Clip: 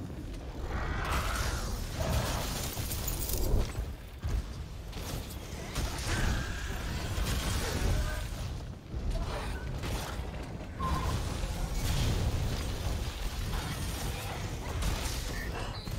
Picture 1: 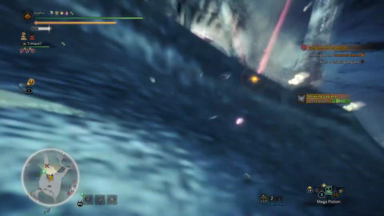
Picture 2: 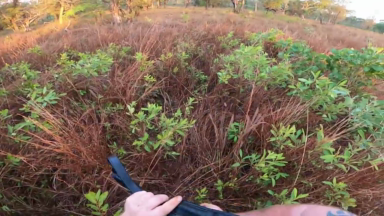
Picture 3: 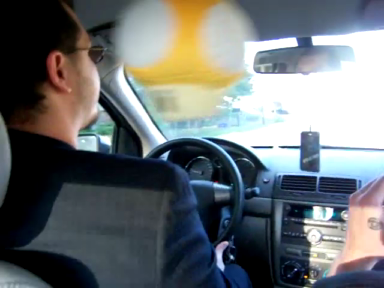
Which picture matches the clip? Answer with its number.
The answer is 1